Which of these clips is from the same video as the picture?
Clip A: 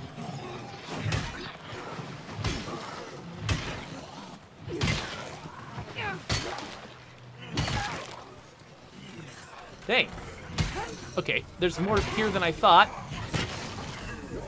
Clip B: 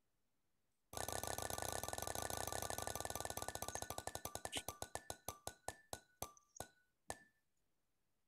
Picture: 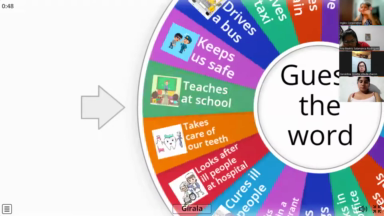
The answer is B